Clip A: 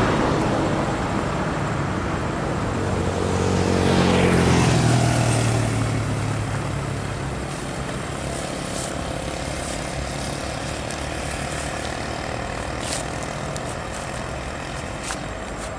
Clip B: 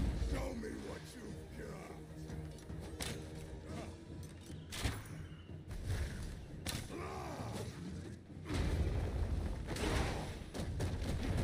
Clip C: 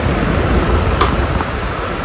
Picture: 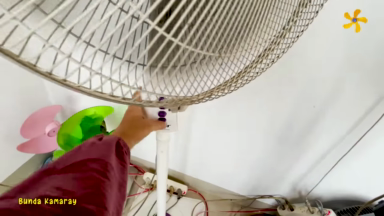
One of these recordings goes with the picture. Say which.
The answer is C